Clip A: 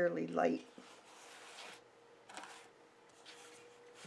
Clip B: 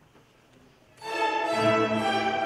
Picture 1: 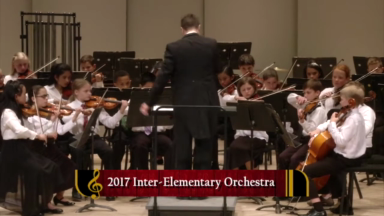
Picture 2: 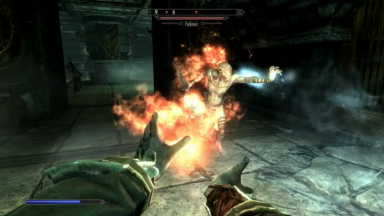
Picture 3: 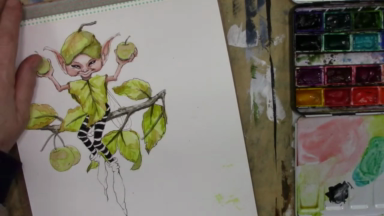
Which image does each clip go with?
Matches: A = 3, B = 1